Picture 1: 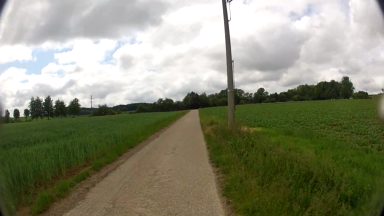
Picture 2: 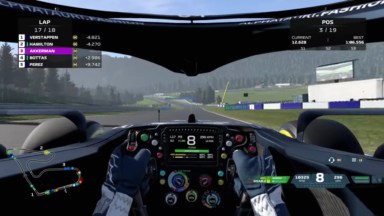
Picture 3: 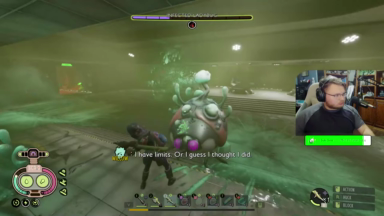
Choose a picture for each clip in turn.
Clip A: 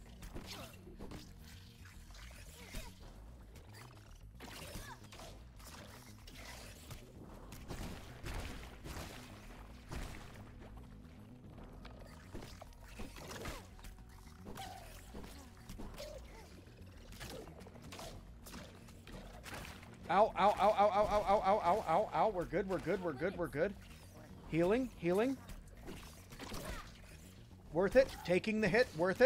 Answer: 3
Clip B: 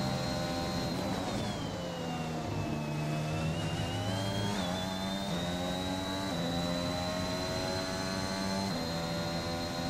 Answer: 2